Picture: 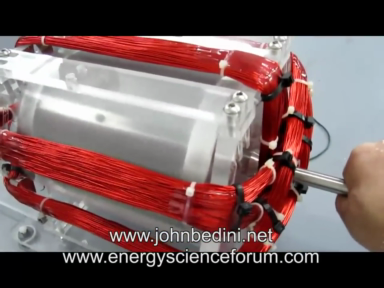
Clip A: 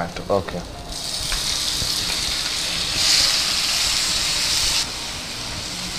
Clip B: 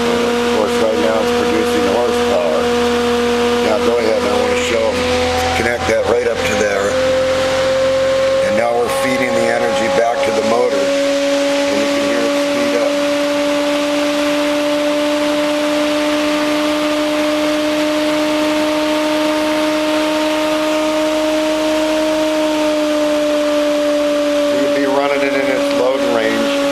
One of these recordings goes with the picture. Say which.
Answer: B